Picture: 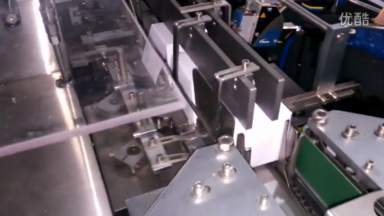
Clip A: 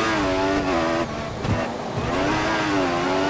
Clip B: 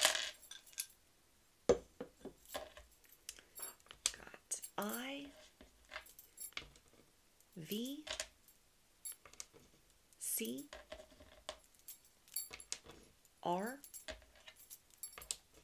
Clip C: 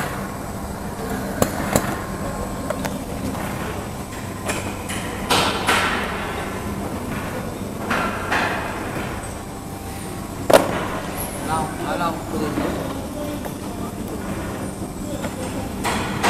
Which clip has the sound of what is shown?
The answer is C